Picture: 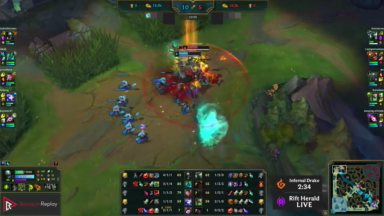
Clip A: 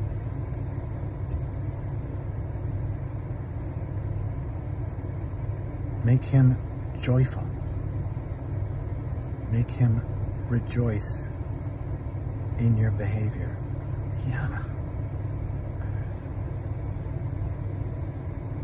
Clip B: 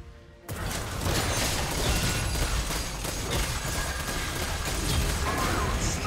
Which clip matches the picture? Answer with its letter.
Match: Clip B